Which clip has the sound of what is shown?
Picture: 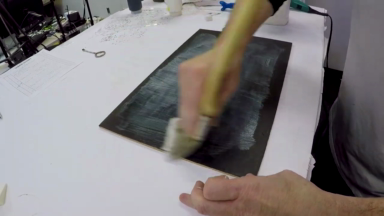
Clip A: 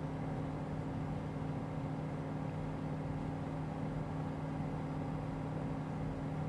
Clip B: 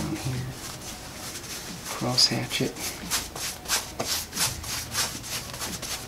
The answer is B